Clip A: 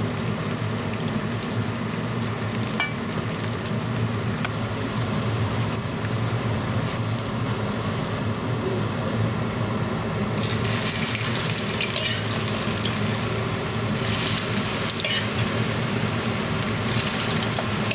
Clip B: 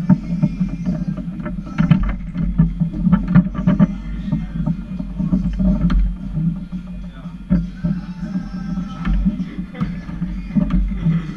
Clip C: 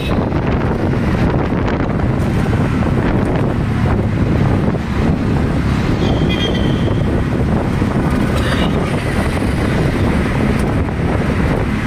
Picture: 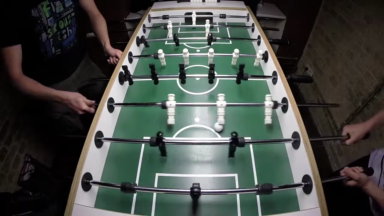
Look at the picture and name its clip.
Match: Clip B